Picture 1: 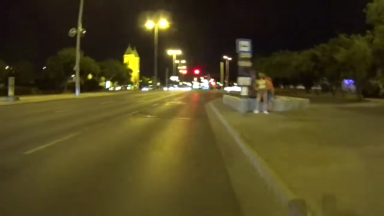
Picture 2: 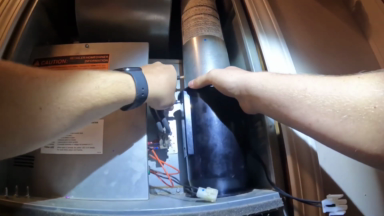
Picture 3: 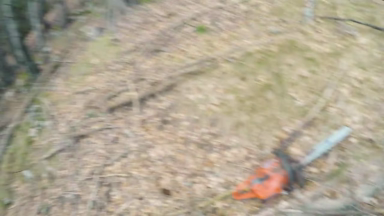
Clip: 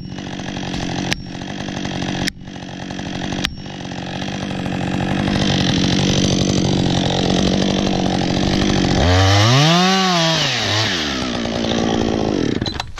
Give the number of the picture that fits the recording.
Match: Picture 3